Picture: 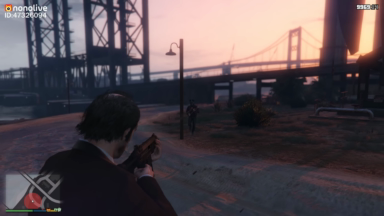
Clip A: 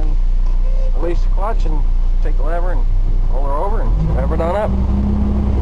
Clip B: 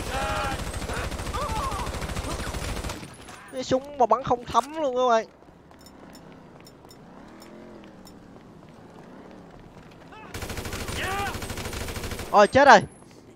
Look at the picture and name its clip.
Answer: B